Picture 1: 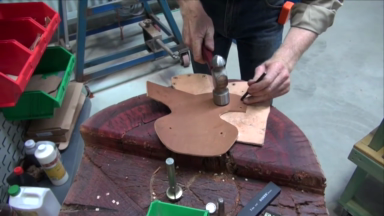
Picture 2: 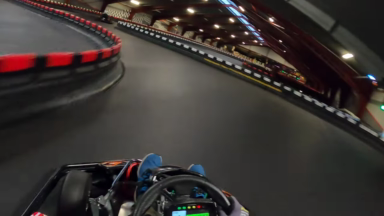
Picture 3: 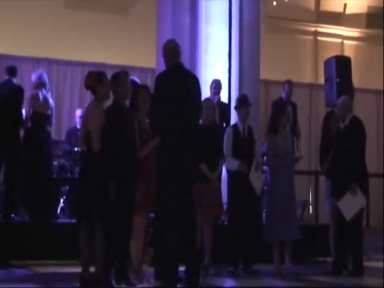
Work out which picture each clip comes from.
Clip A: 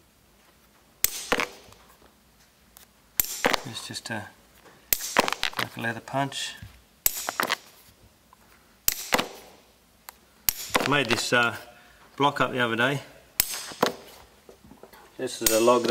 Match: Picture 1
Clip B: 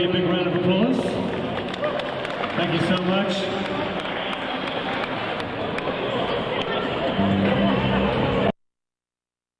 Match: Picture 3